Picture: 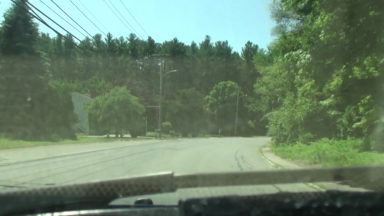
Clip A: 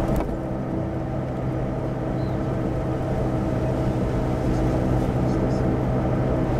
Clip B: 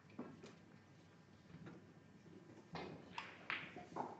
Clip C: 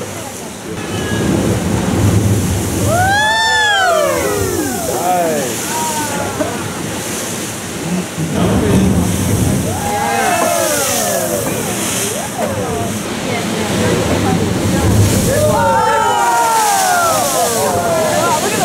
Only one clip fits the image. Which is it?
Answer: A